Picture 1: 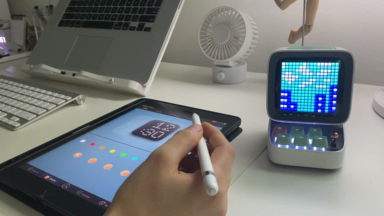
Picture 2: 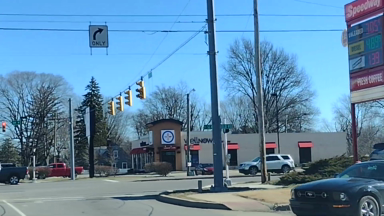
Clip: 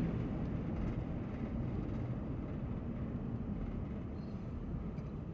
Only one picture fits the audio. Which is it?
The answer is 2